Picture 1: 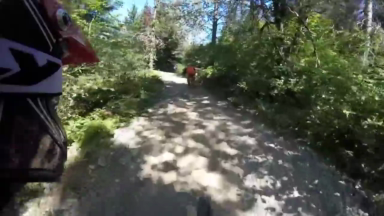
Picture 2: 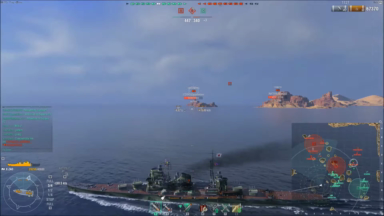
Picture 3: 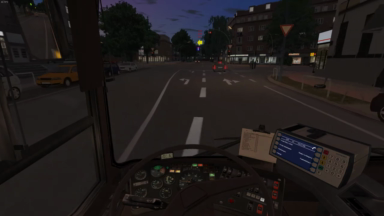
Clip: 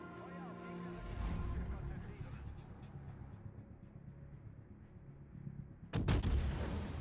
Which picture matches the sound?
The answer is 2